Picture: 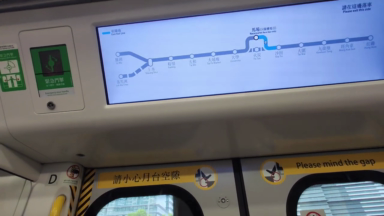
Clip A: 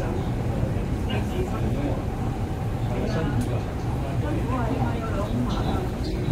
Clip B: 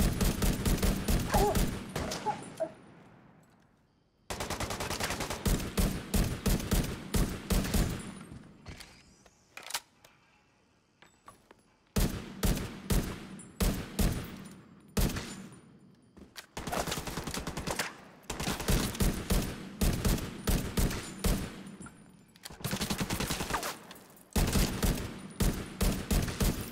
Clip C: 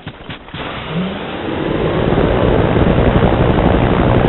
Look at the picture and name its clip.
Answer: A